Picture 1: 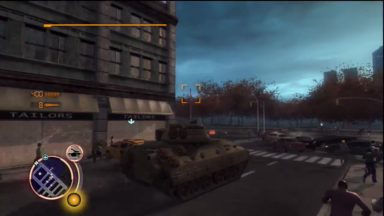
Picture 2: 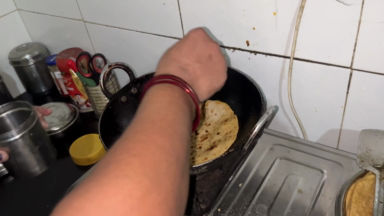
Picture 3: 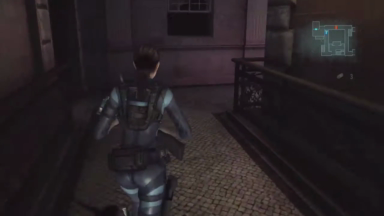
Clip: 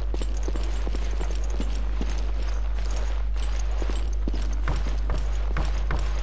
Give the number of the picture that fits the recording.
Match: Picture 3